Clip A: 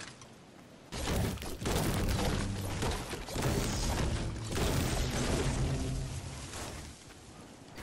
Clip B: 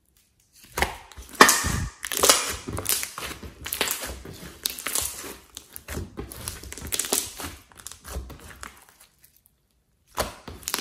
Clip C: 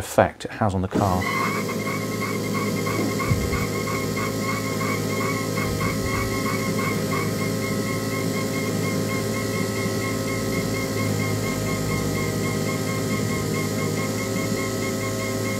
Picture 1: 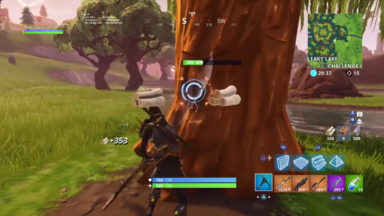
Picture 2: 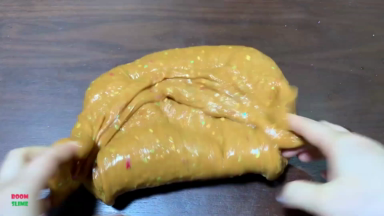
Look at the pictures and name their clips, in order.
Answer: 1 A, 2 B